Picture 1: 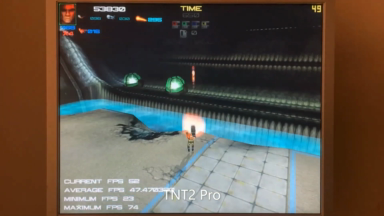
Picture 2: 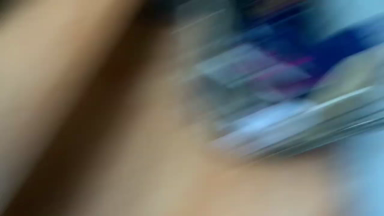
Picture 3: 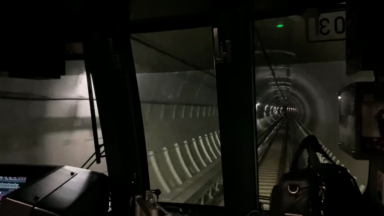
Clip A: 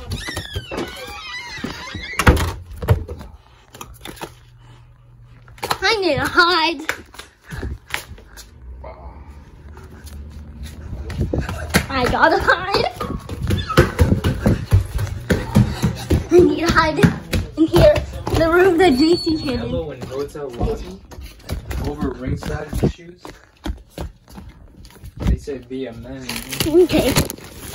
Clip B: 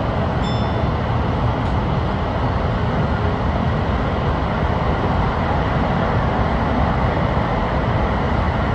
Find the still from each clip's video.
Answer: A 2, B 3